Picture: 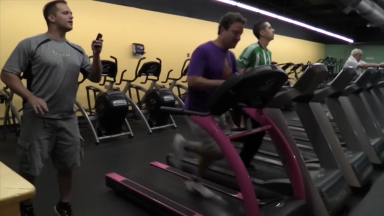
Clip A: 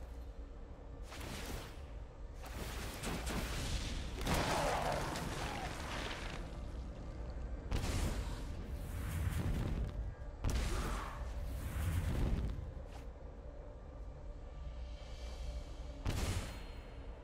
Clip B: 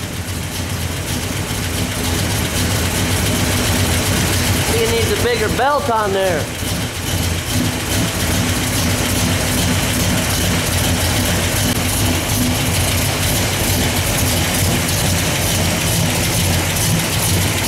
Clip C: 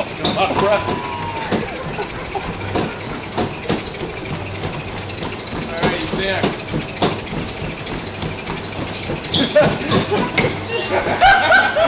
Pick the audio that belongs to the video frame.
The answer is C